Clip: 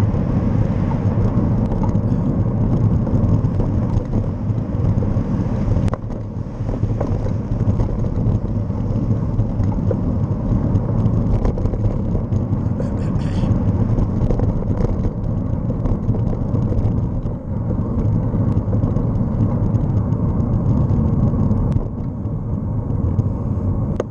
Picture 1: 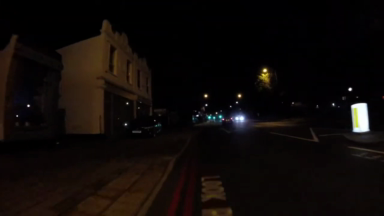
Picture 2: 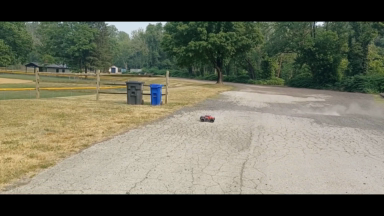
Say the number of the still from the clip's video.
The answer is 1